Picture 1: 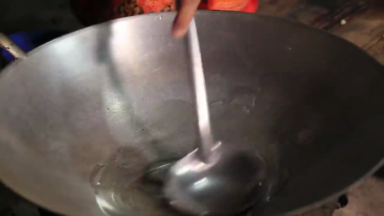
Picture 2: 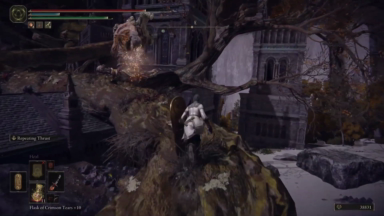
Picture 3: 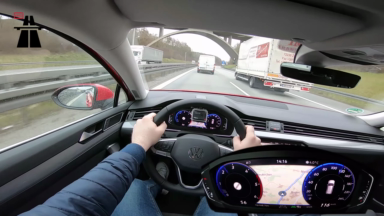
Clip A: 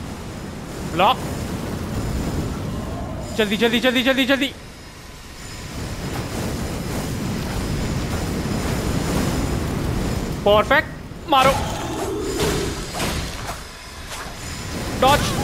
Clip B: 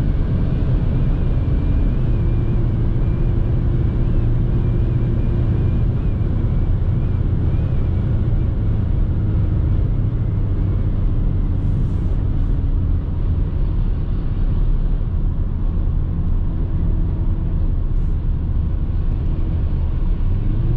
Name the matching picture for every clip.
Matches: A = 2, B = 3